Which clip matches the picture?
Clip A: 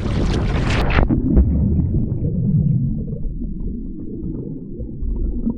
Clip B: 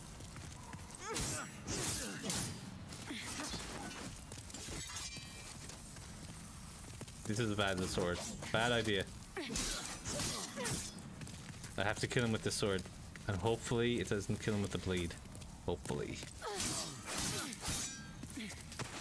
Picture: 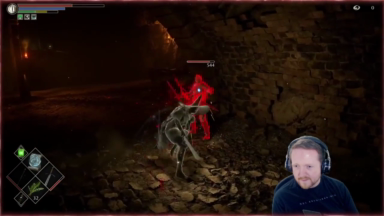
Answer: B